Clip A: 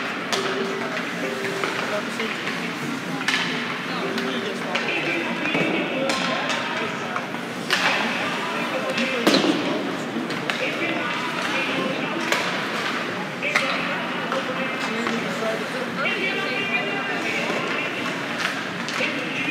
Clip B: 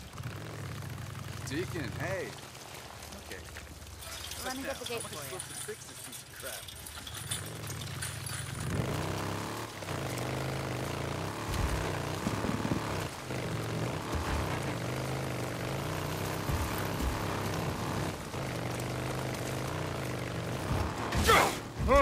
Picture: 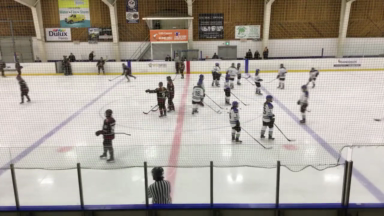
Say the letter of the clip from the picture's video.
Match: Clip A